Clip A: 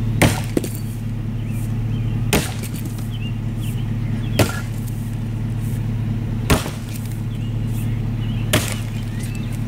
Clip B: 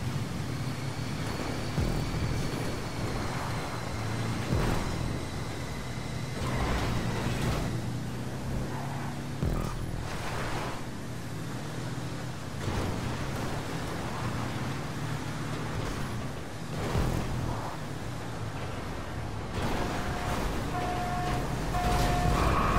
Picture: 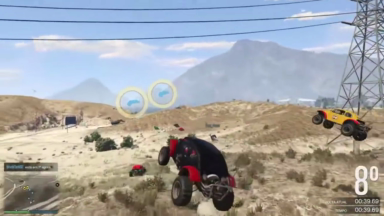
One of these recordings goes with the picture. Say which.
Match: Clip B